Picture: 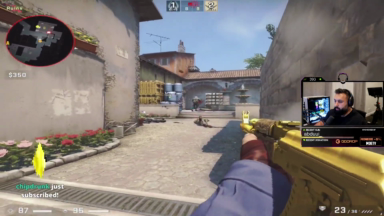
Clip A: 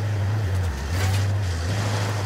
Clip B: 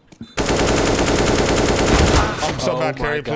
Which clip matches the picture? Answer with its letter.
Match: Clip B